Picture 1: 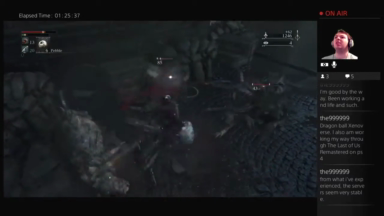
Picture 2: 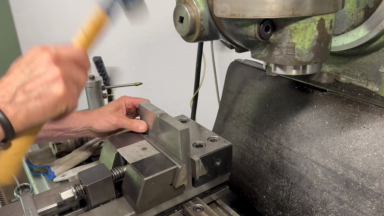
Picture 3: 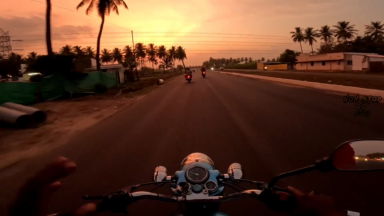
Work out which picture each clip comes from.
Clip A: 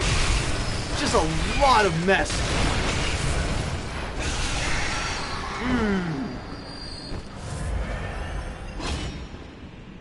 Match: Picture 1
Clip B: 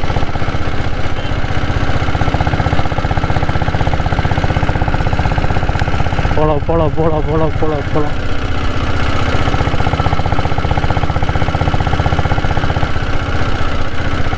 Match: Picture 3